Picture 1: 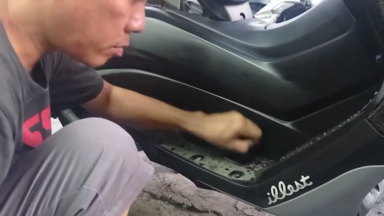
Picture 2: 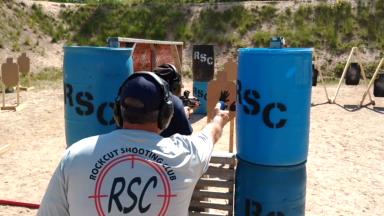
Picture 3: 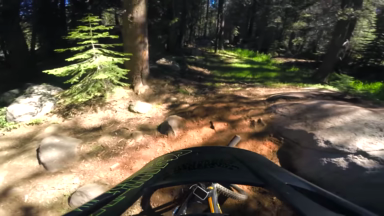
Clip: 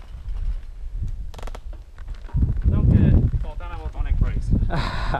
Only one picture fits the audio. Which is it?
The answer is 3